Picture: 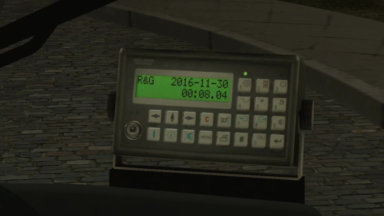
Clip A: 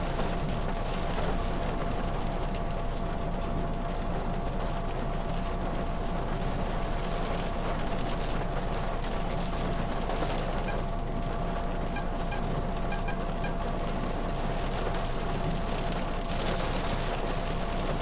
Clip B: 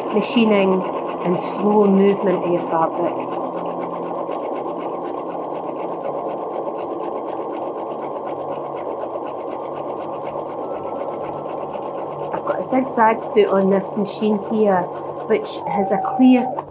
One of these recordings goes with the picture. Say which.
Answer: A